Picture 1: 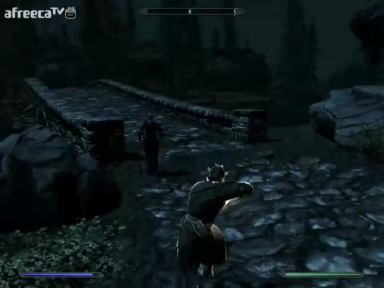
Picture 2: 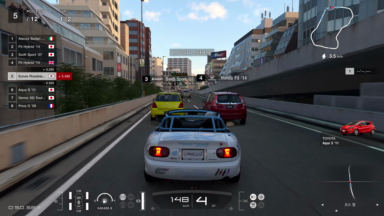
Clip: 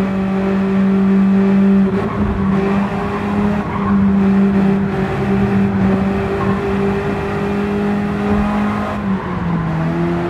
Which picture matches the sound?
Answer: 2